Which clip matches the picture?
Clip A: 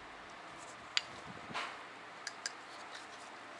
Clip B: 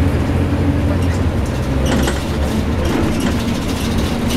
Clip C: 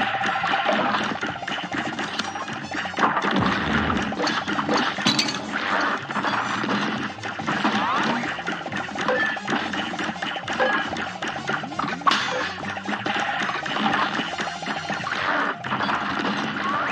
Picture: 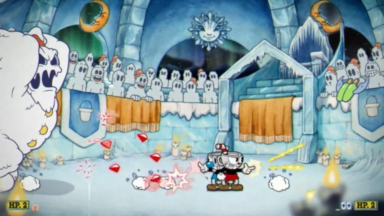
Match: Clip C